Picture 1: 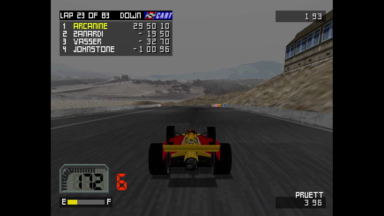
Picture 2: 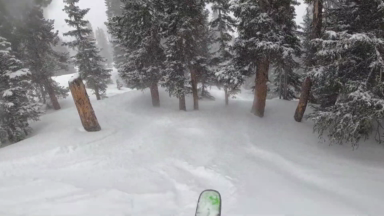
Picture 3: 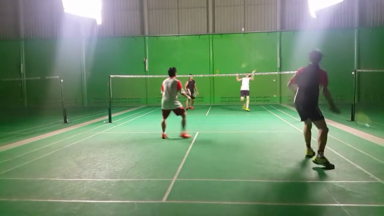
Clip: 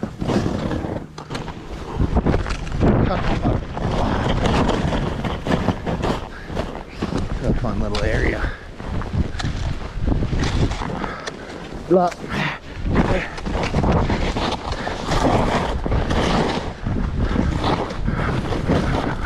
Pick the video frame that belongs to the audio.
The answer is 2